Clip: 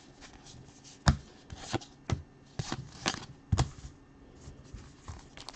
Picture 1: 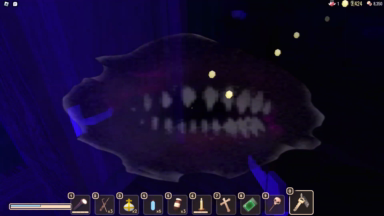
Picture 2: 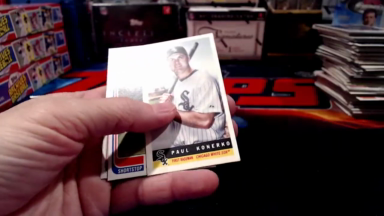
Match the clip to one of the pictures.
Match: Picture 2